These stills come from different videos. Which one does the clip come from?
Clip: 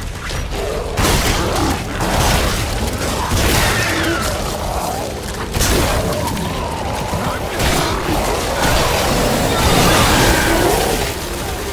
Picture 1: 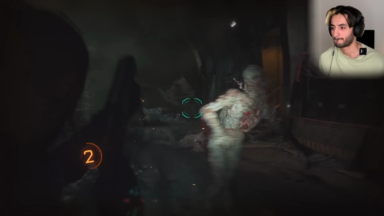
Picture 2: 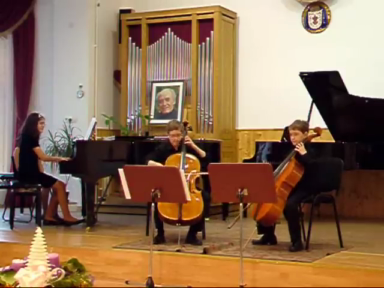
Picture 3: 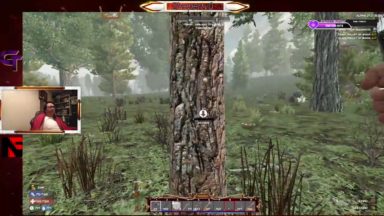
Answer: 1